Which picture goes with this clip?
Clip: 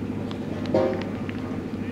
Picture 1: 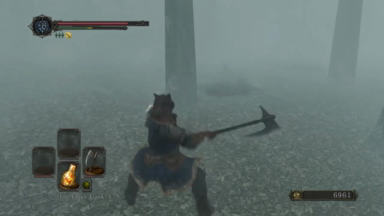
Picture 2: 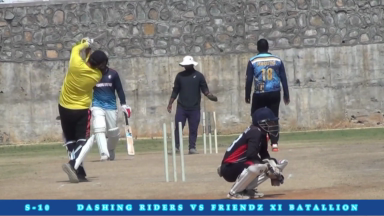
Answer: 2